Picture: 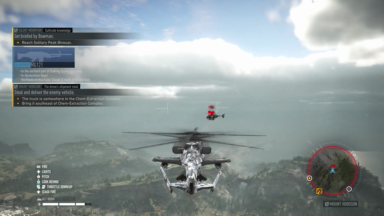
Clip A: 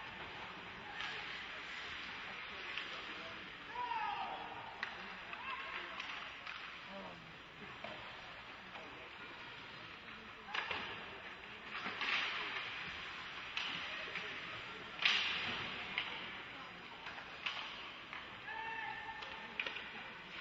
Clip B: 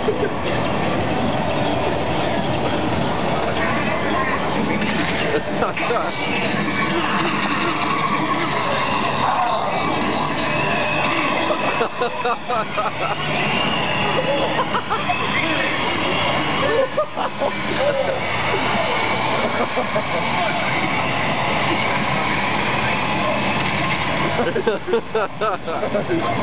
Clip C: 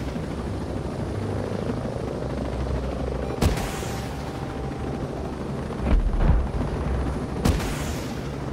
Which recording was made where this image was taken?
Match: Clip C